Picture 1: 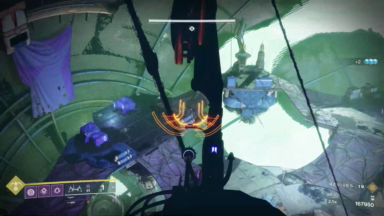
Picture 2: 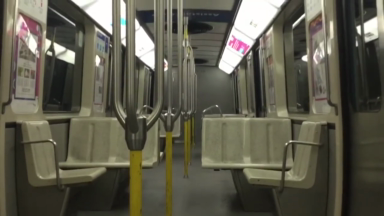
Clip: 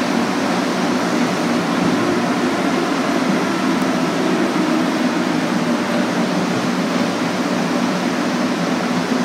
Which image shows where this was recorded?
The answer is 2